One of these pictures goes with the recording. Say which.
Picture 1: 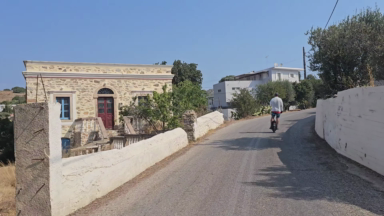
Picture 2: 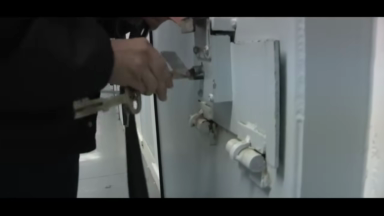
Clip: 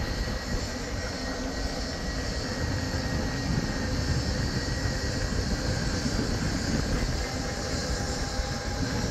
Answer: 1